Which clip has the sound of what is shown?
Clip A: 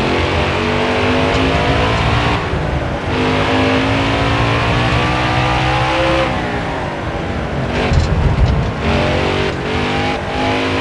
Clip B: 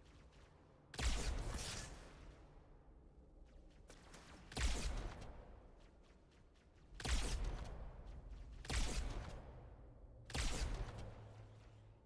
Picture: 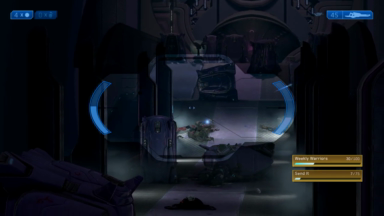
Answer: B